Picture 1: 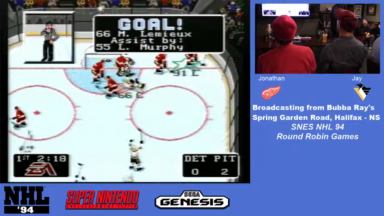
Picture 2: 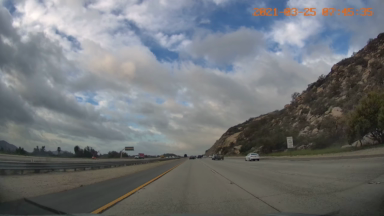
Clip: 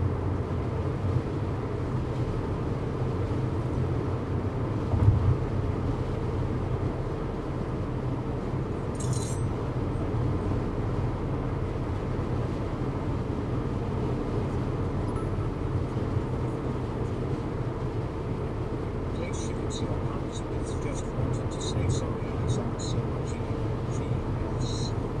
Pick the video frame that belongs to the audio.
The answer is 2